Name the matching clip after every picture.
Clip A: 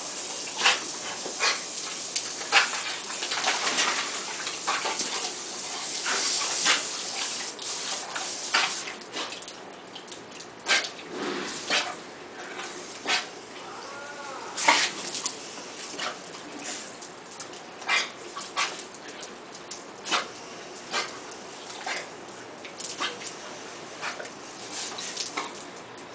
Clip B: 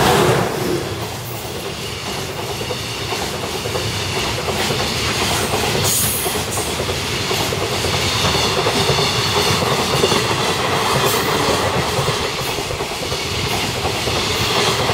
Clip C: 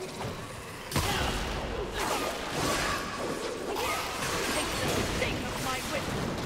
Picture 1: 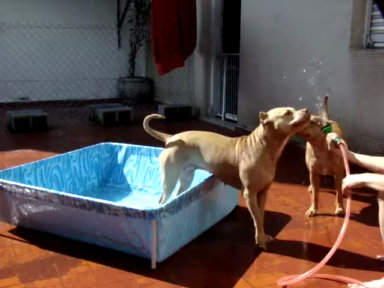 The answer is A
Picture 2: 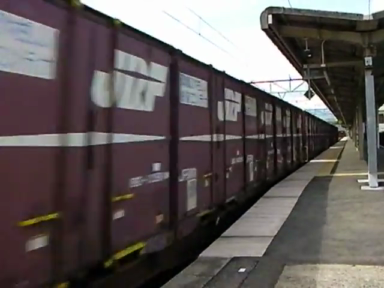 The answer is B